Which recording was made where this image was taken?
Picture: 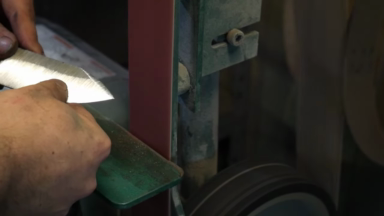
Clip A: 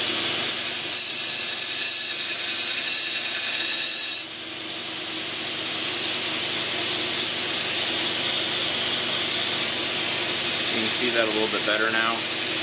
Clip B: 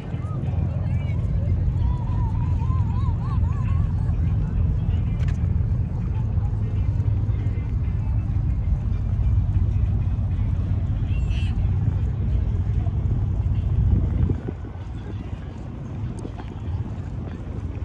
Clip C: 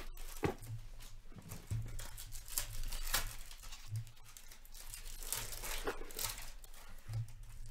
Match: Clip A